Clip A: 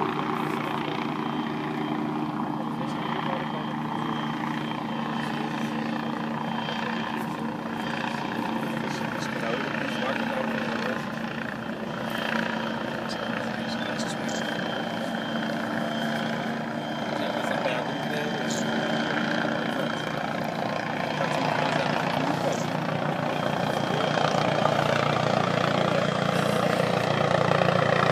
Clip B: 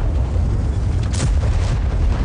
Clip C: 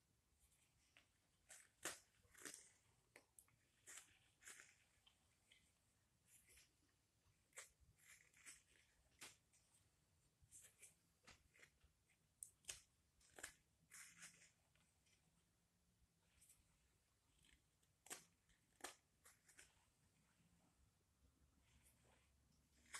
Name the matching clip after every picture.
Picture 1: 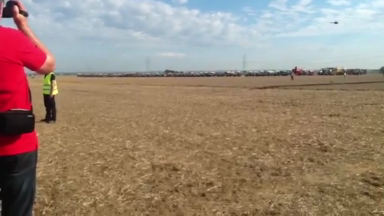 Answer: A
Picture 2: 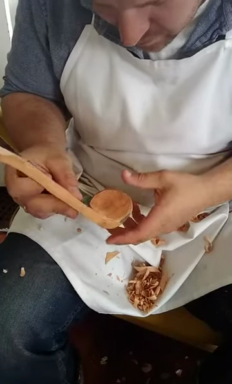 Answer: C